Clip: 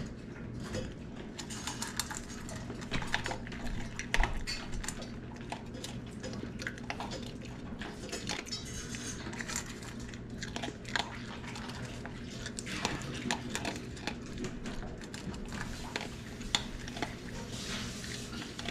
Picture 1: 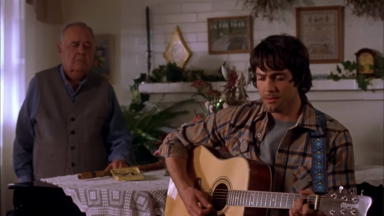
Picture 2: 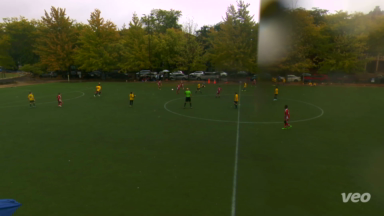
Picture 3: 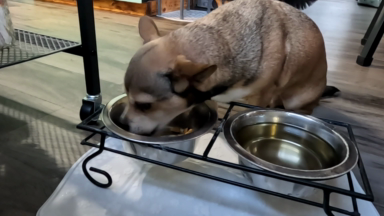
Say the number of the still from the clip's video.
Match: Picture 3